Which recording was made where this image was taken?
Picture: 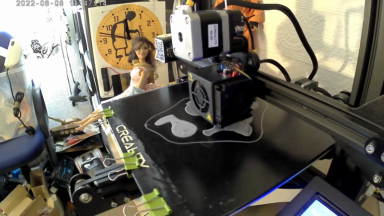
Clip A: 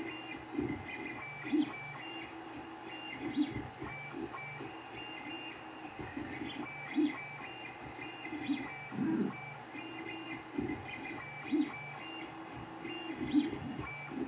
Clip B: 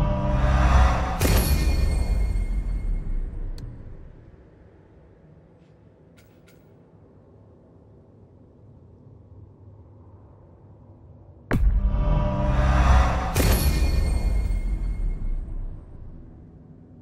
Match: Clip A